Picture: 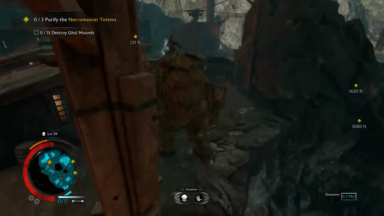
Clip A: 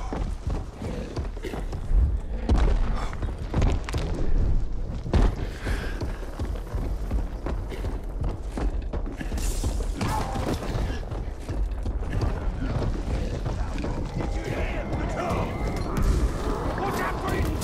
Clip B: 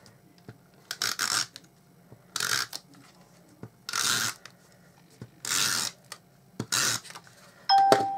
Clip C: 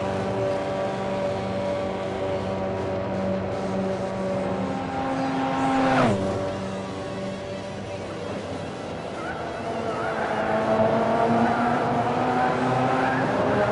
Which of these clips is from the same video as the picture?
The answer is A